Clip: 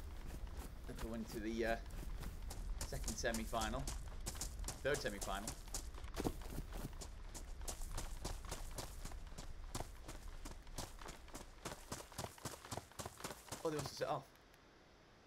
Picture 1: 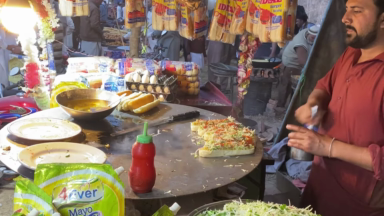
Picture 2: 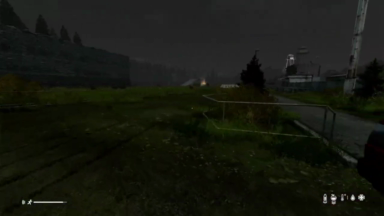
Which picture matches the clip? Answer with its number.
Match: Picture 2